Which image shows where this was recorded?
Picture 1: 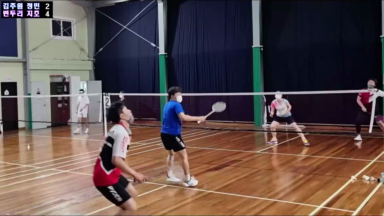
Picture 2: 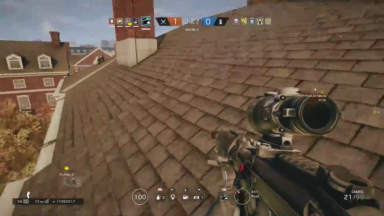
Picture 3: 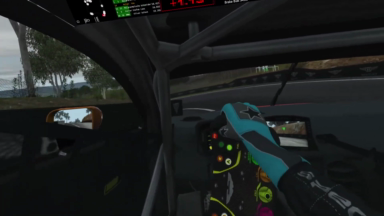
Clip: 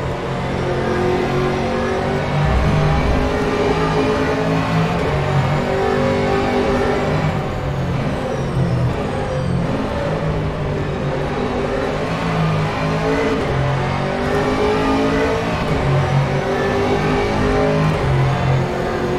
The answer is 3